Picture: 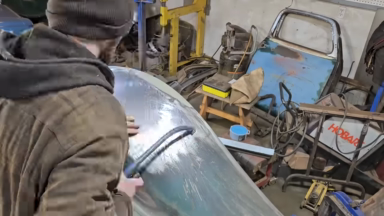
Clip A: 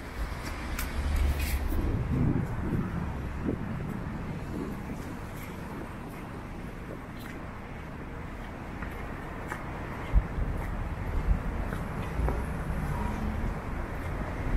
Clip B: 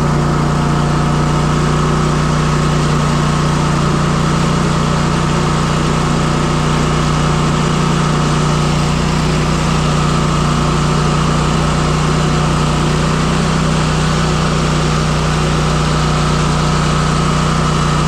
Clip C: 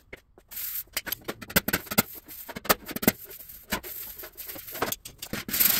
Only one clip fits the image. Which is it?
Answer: C